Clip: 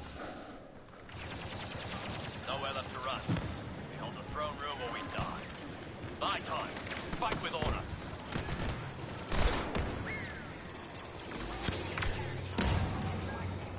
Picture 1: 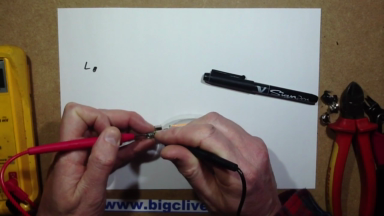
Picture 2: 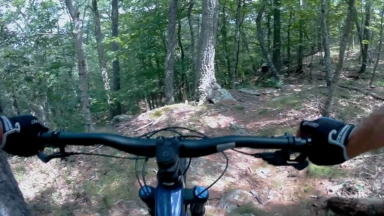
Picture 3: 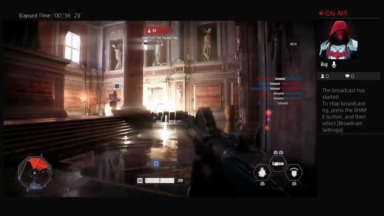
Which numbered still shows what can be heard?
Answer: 3